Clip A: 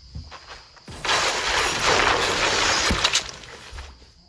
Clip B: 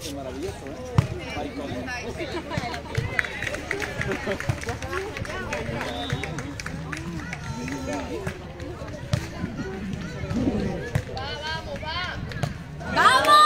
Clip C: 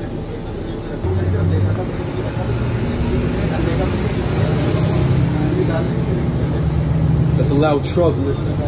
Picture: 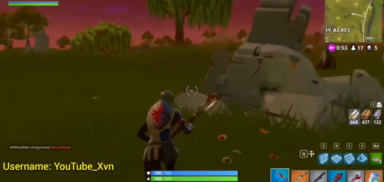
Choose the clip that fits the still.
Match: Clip A